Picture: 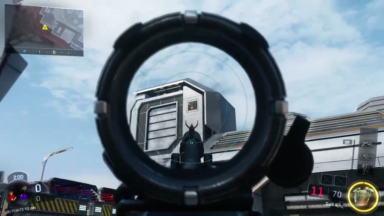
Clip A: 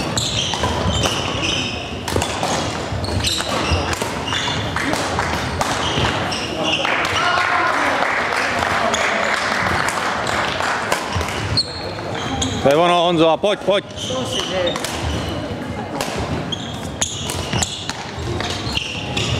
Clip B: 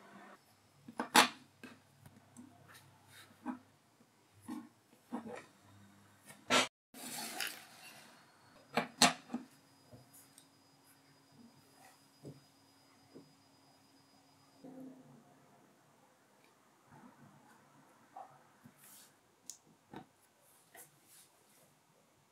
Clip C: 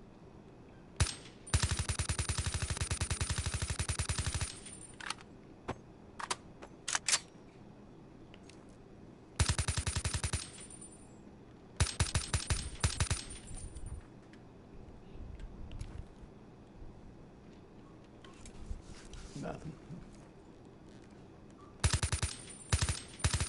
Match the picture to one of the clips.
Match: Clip C